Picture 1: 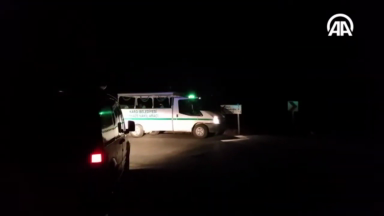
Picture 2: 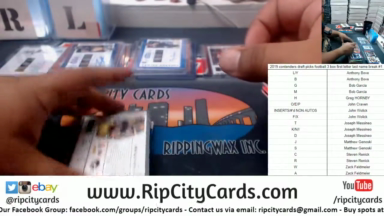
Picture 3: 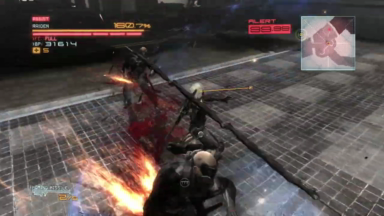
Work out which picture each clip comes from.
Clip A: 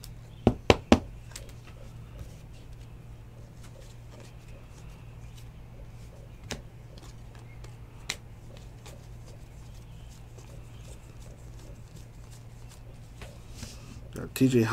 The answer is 2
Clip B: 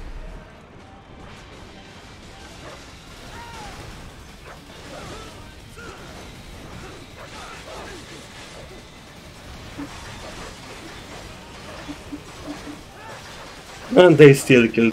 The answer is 3